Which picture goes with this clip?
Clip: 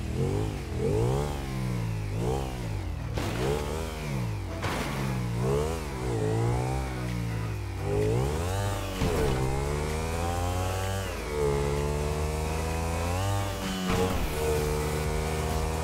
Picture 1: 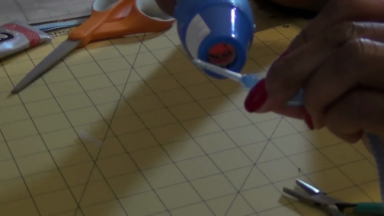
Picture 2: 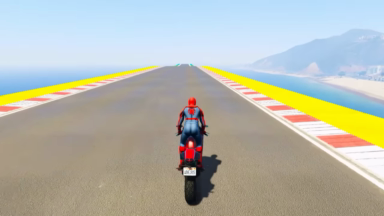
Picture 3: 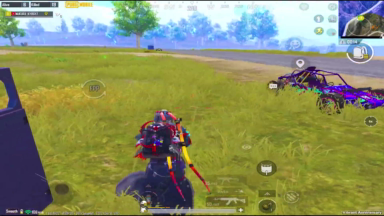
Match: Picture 2